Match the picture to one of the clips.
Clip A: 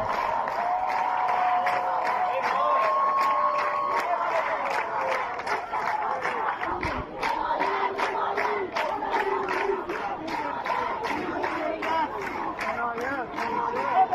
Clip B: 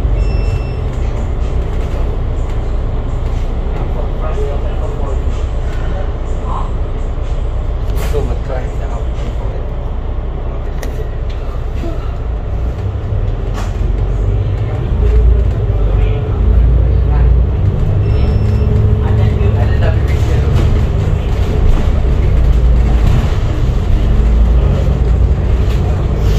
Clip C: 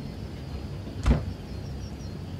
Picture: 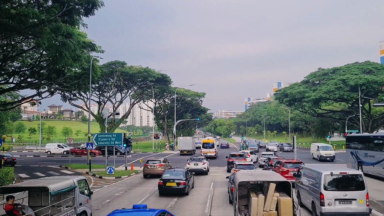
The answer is B